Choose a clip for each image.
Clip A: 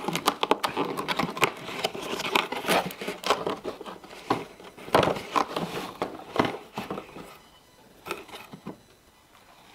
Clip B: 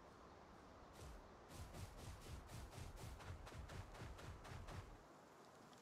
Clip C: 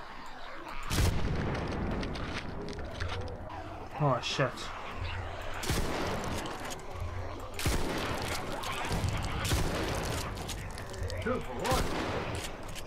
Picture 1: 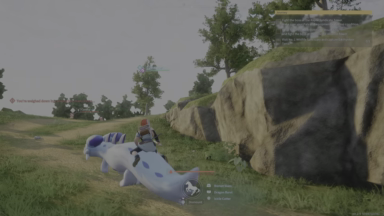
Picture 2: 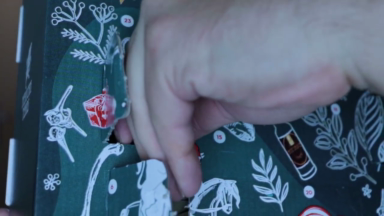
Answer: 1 B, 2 A